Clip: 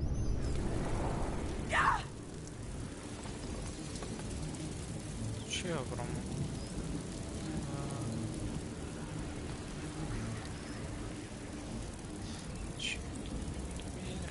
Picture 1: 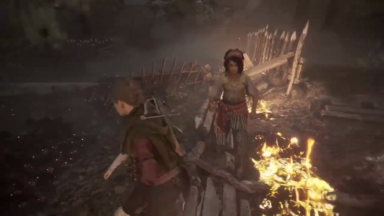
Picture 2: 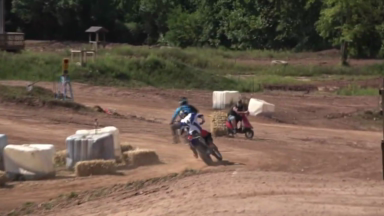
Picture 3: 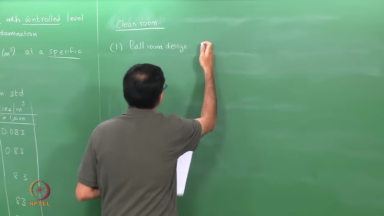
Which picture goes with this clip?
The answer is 1